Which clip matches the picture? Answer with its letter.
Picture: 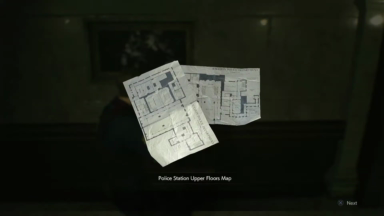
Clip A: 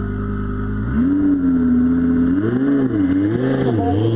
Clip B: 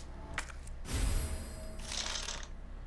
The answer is B